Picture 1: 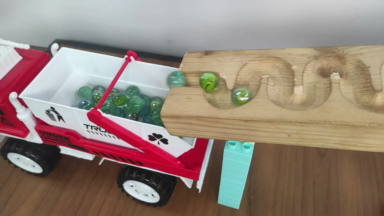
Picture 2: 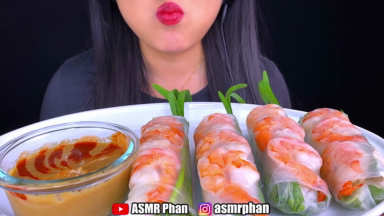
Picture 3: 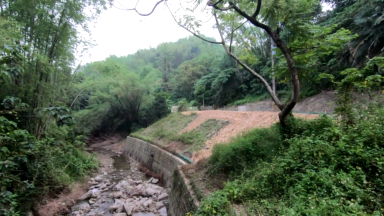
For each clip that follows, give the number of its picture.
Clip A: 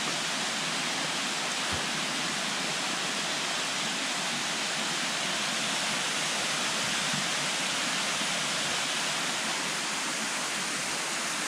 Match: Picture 3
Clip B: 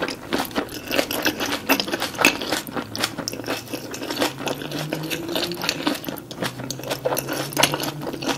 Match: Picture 2